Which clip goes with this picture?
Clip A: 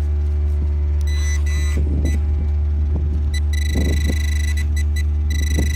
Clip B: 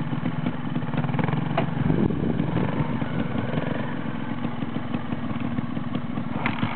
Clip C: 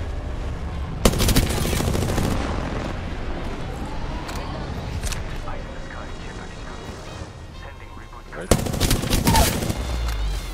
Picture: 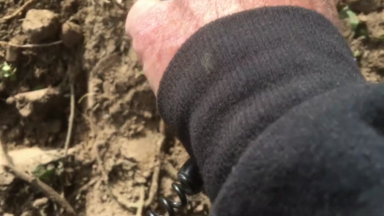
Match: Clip A